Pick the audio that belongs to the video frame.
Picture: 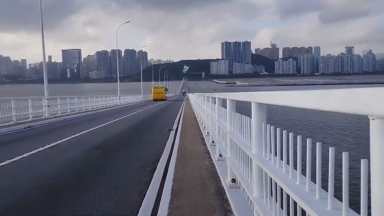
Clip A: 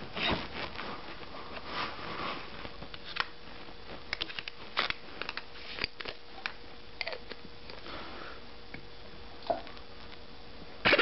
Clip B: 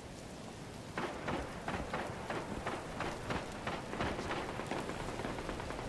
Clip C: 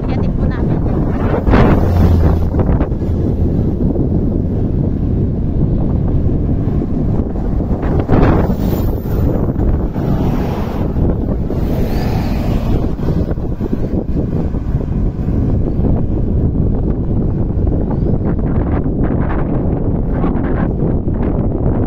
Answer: C